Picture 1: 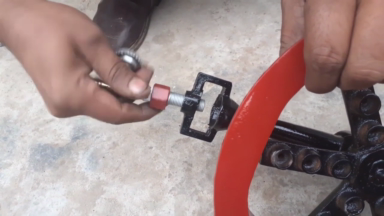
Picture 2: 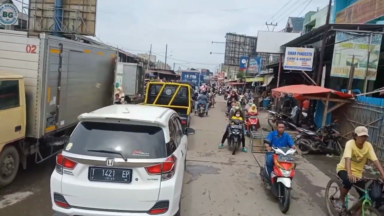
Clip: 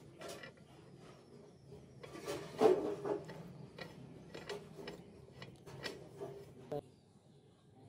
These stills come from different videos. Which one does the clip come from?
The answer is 1